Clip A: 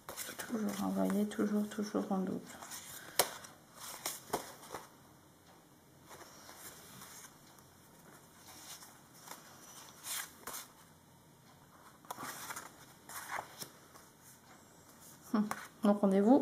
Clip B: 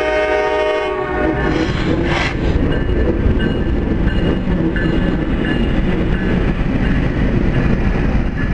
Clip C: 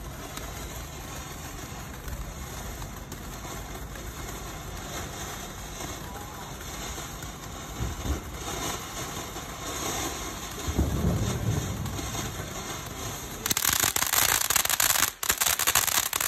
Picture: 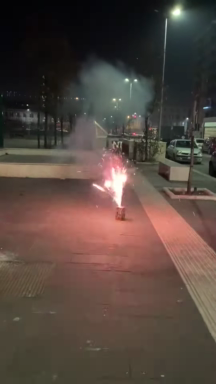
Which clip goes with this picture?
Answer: C